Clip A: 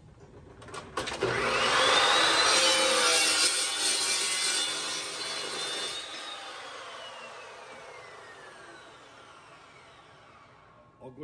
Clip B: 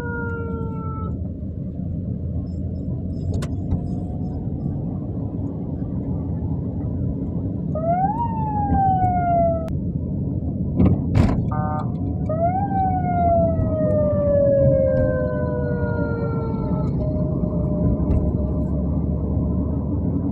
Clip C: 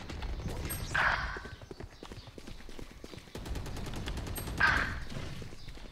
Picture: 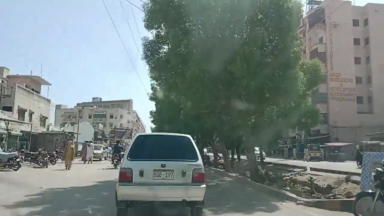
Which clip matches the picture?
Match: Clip B